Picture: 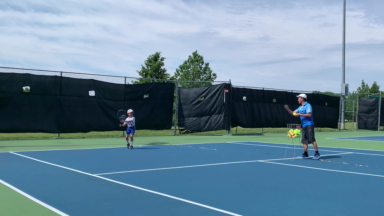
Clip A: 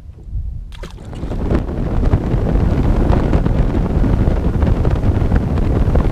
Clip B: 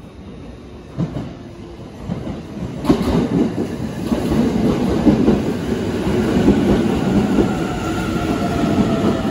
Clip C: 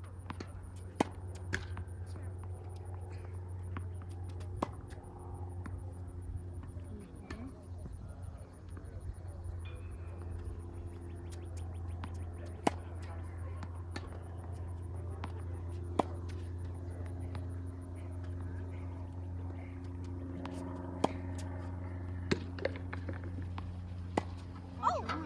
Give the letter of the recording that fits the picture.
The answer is C